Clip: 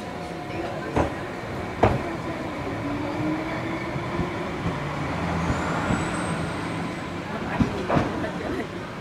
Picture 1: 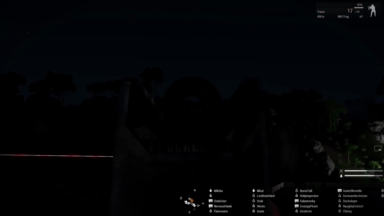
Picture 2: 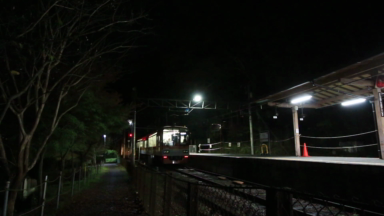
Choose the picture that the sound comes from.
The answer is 2